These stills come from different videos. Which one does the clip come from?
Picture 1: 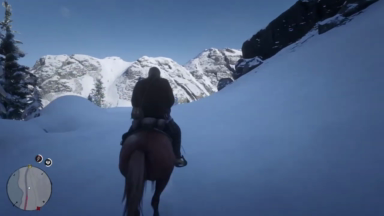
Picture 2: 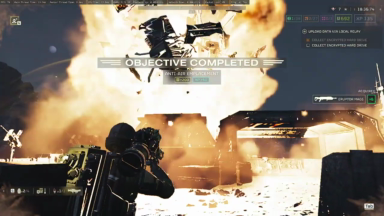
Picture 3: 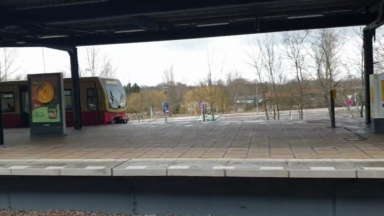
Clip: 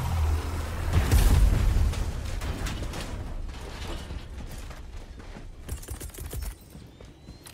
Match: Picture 2